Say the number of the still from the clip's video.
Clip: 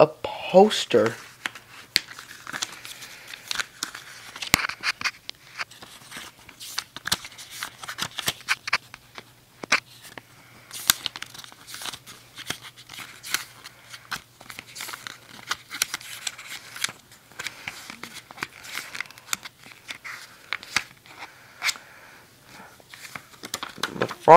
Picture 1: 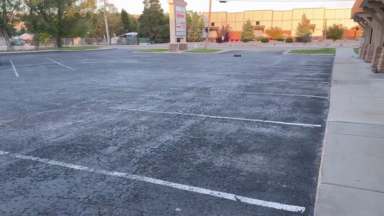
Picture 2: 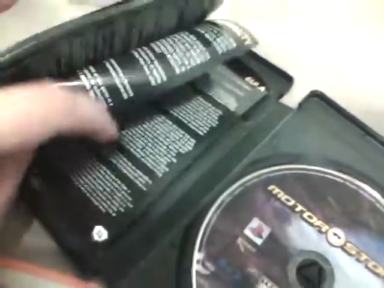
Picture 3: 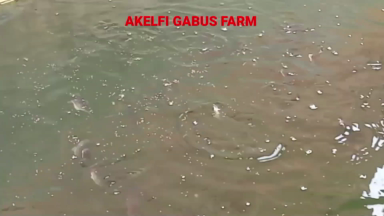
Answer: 2